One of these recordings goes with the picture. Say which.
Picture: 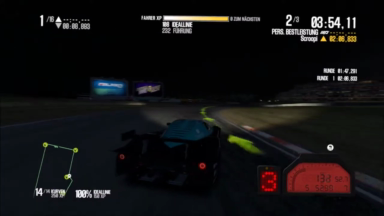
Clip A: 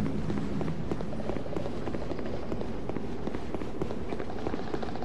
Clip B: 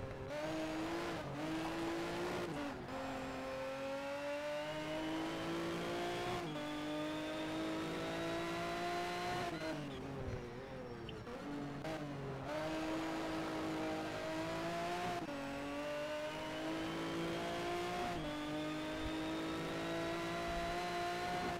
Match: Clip B